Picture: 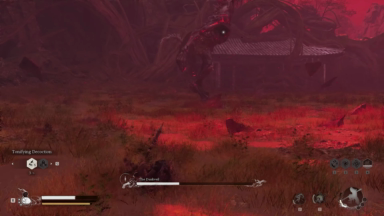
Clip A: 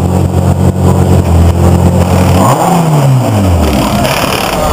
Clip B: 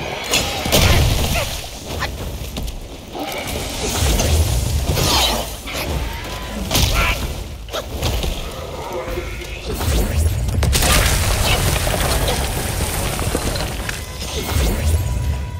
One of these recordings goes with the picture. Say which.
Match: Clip B